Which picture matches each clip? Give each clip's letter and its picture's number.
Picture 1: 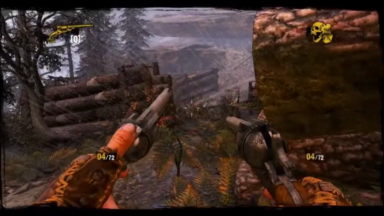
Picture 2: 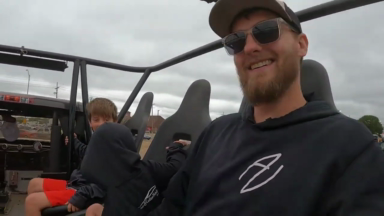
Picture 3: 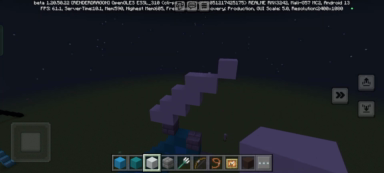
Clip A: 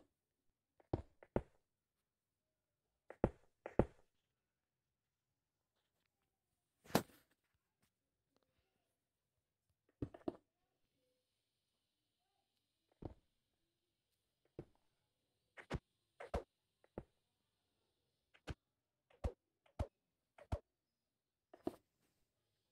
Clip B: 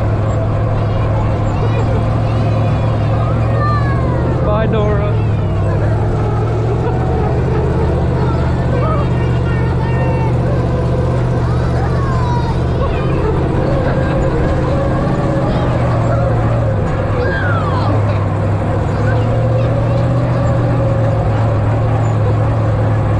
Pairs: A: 3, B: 2